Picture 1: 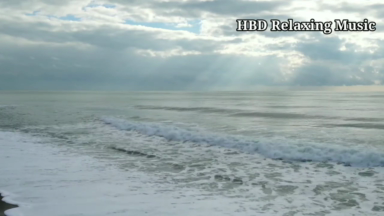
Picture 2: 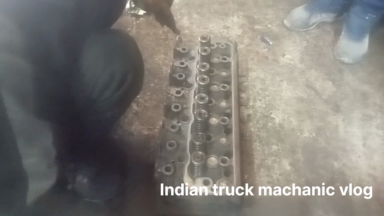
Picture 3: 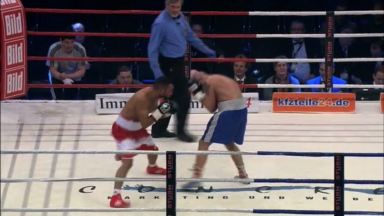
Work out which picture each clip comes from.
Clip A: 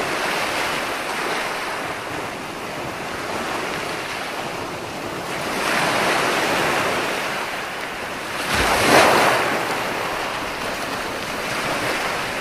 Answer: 1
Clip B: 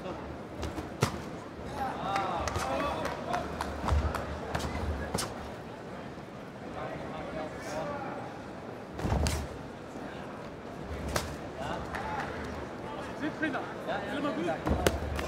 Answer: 3